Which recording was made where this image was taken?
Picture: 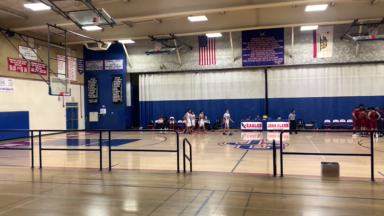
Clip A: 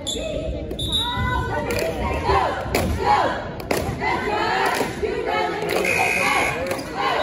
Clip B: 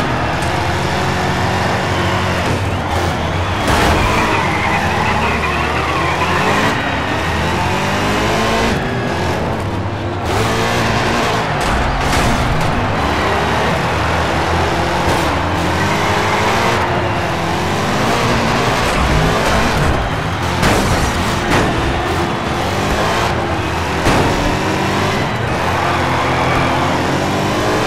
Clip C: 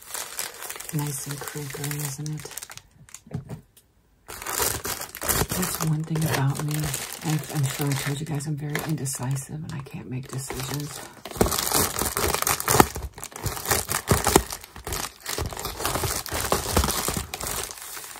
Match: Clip A